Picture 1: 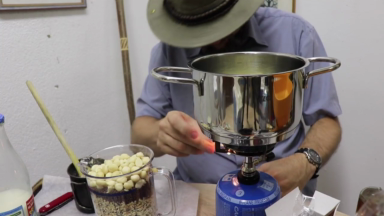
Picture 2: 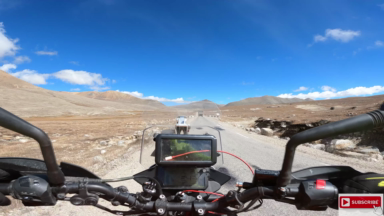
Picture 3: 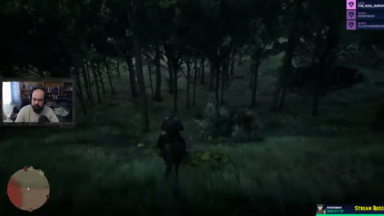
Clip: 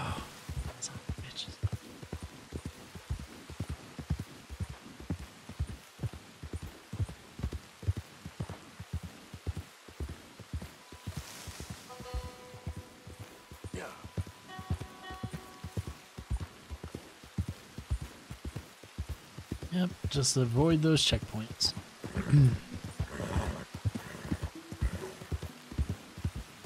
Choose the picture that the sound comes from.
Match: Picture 3